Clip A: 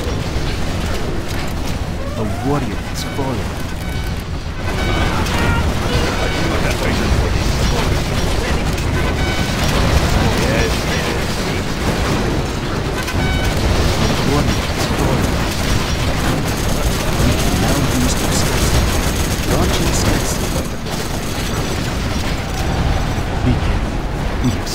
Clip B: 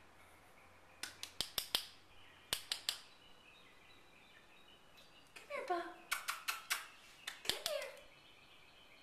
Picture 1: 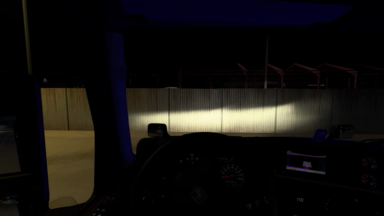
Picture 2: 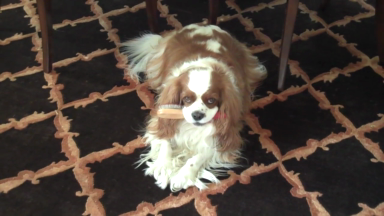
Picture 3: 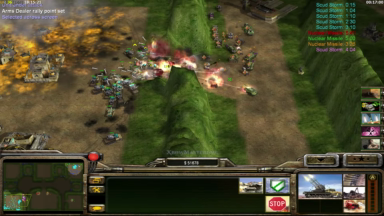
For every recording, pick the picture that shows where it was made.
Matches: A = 3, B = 2